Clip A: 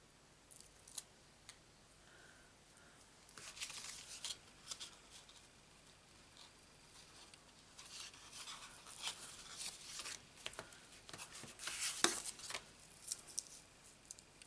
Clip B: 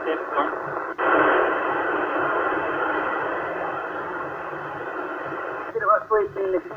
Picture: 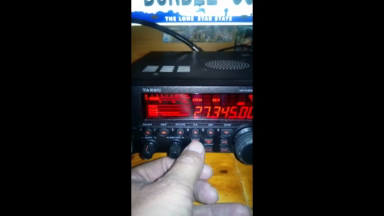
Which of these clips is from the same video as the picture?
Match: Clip B